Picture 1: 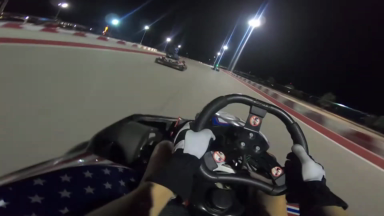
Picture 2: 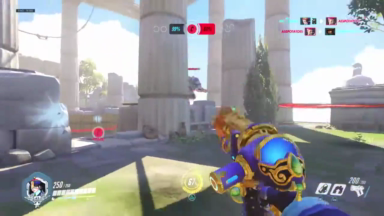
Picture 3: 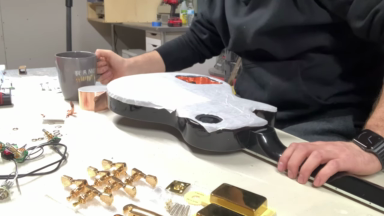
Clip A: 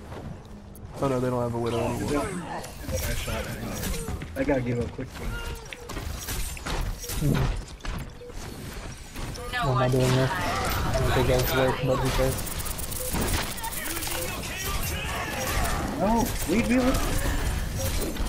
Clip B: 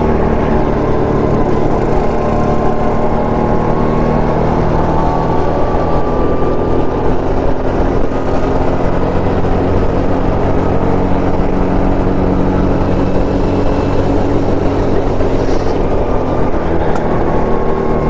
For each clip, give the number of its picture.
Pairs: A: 2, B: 1